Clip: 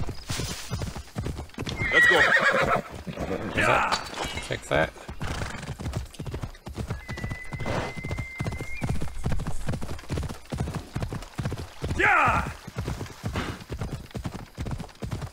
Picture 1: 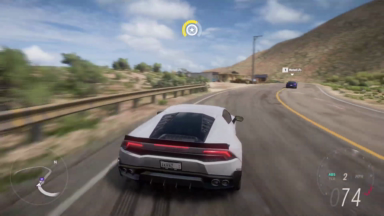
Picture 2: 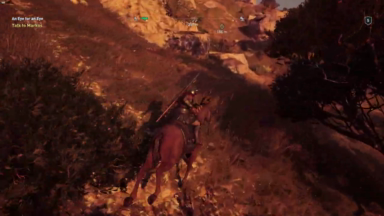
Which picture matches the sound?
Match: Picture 2